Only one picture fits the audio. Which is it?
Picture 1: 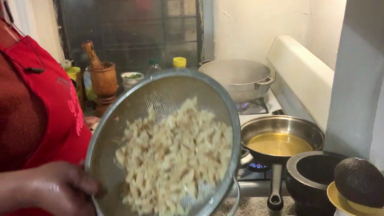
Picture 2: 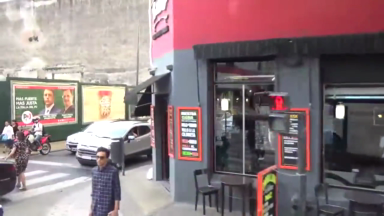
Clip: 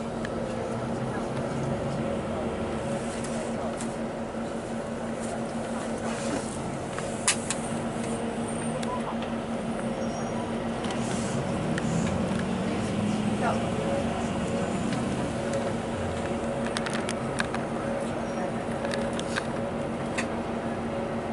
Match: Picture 2